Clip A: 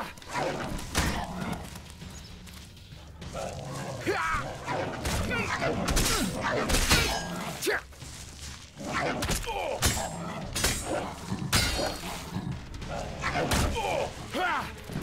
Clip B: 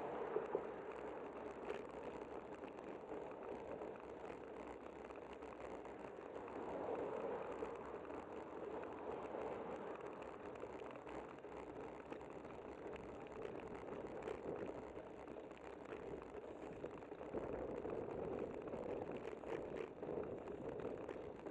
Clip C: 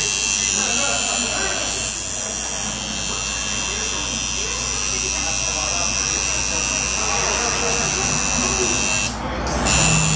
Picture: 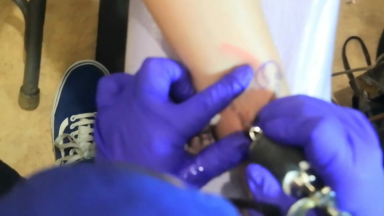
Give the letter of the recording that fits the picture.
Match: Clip C